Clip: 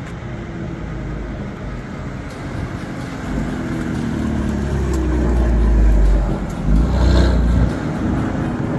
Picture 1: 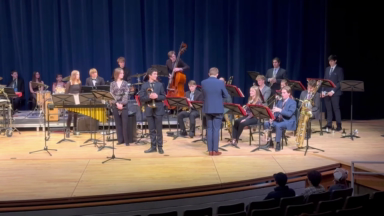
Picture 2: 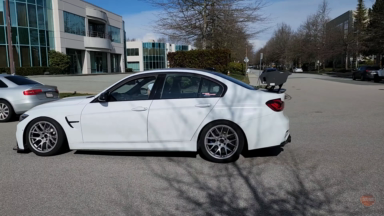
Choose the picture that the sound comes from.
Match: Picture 2